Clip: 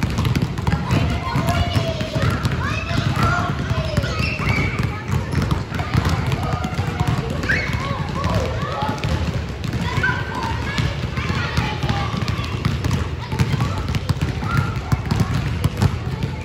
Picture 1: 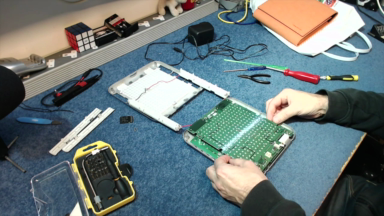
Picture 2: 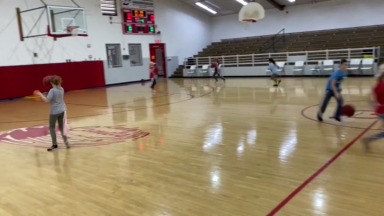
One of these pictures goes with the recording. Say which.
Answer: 2